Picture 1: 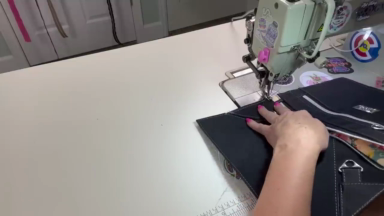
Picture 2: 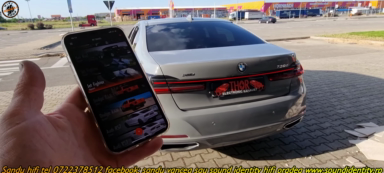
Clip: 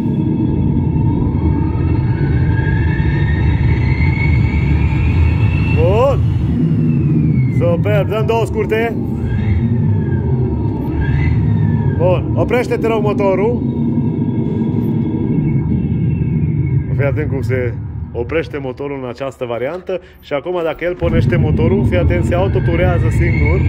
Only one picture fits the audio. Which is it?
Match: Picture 2